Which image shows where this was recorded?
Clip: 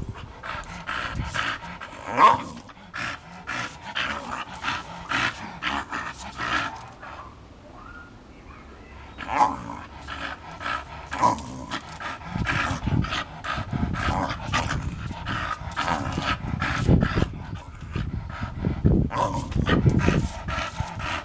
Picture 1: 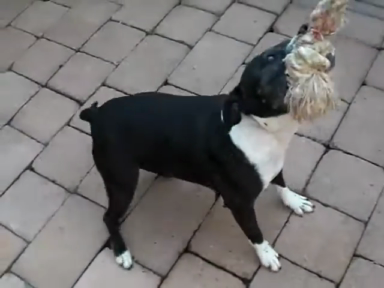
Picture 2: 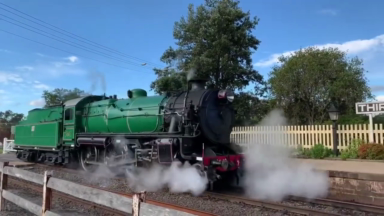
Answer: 1